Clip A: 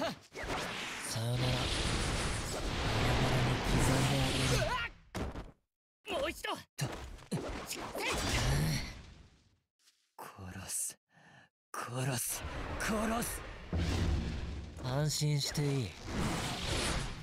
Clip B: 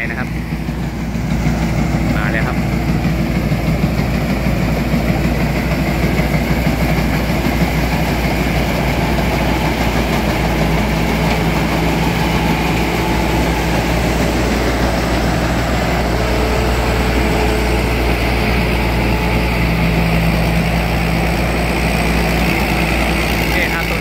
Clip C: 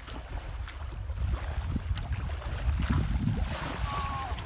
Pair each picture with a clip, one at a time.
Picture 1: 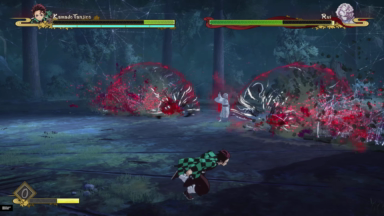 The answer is A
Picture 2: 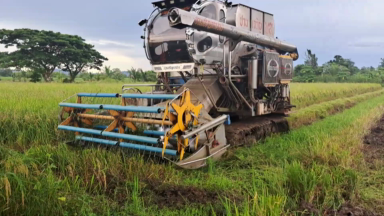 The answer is B